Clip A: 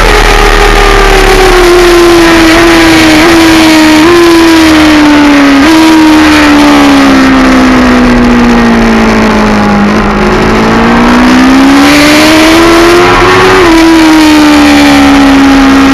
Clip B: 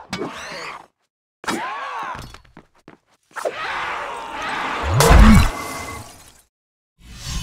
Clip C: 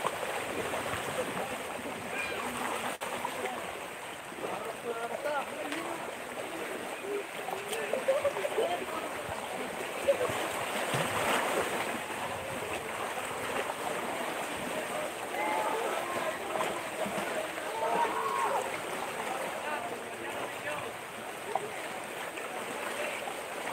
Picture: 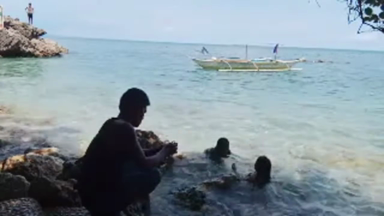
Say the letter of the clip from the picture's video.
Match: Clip C